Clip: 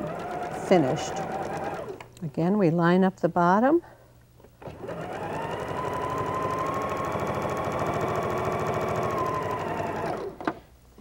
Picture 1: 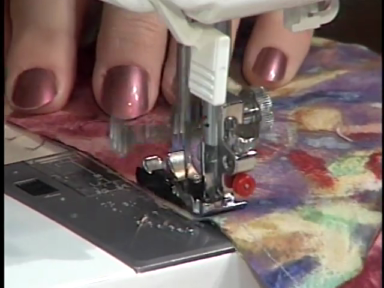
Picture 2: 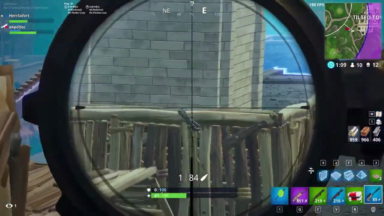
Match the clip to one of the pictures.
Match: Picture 1